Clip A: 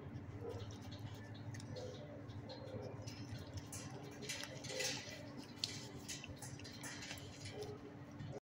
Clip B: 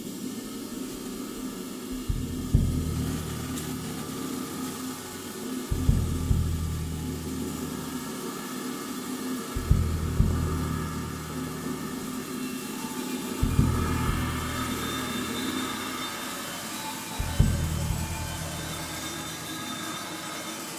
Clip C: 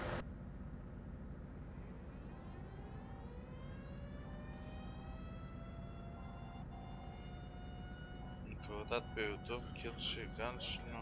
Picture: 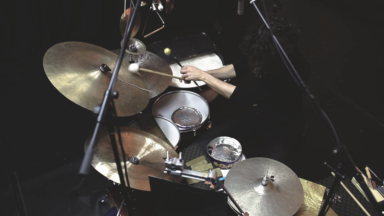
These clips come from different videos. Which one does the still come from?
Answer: B